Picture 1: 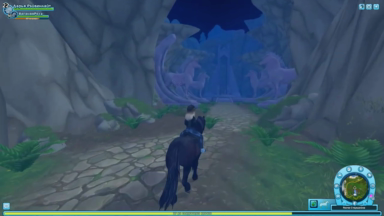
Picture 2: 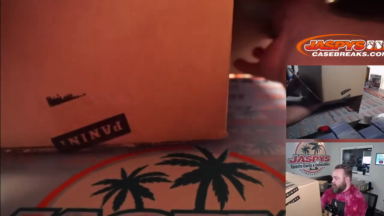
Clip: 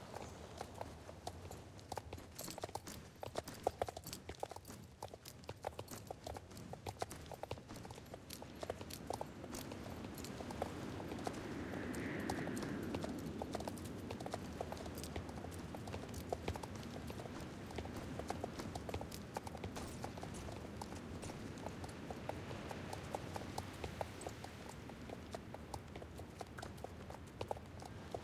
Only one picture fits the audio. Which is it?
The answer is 1